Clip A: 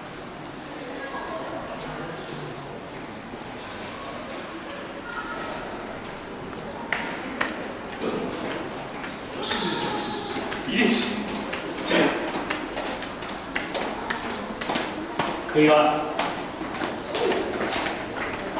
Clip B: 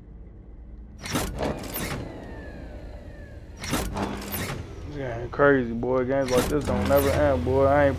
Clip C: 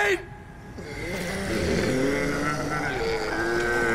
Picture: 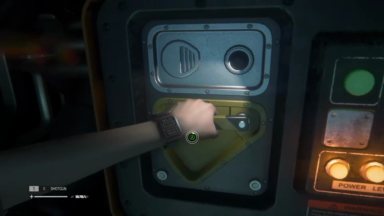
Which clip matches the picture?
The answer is B